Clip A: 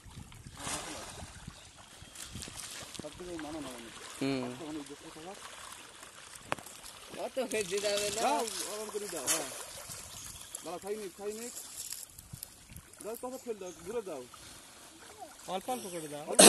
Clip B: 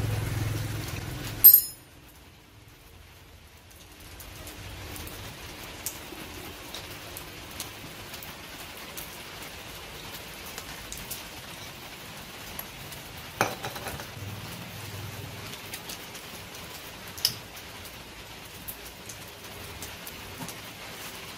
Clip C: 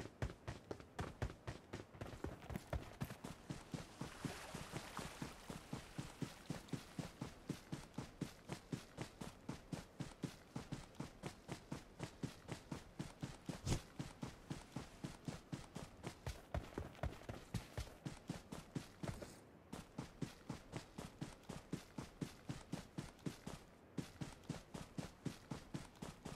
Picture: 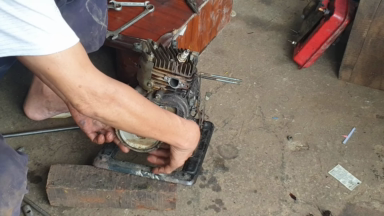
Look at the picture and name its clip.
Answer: B